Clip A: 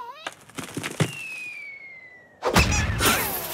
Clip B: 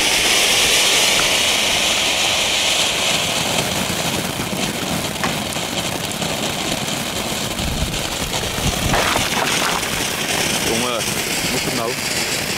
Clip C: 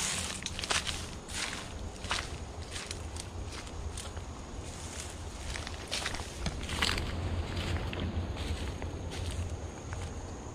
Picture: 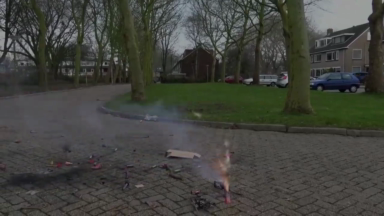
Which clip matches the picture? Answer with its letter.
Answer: B